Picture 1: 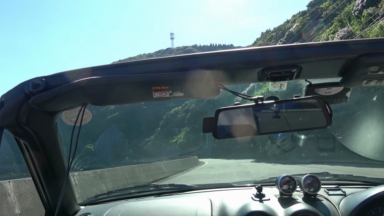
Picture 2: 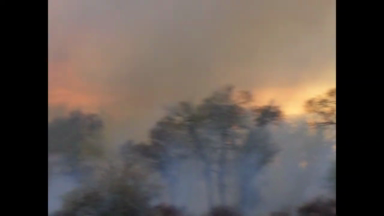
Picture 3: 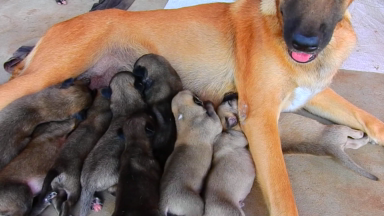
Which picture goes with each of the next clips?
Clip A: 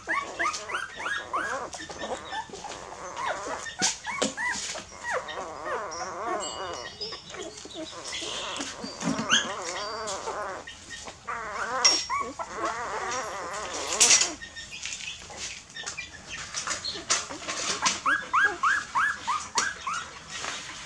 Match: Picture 3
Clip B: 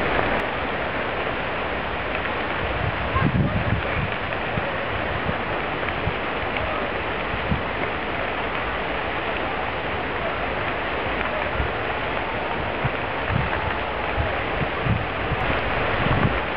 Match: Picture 2